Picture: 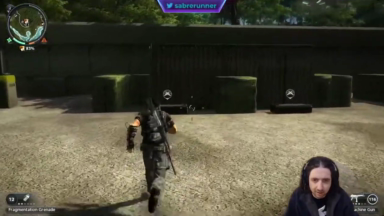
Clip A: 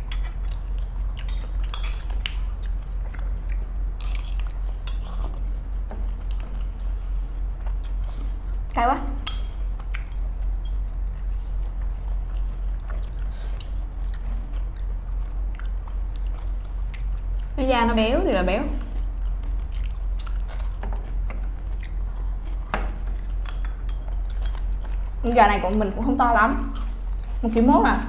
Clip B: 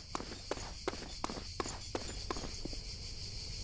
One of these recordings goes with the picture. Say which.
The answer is B